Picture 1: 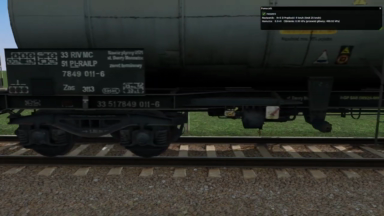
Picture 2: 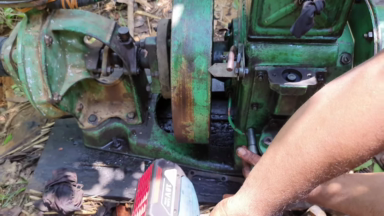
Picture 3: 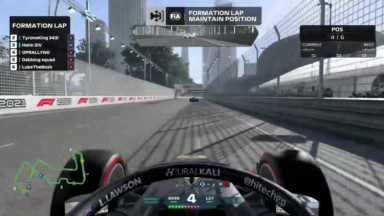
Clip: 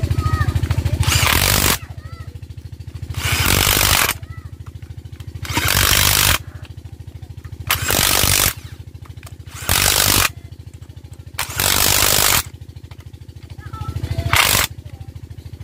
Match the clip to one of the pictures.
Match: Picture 2